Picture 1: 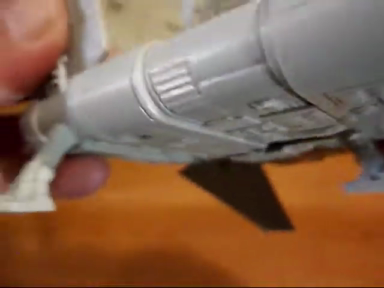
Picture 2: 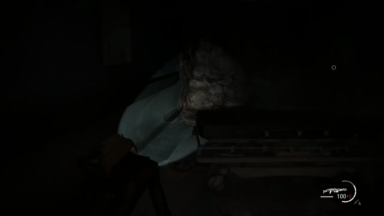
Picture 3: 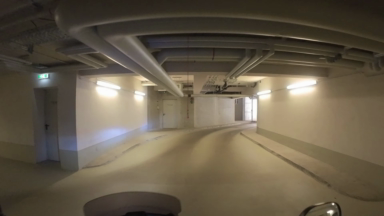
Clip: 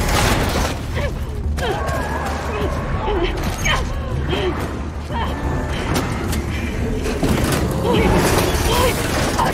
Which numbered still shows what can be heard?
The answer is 2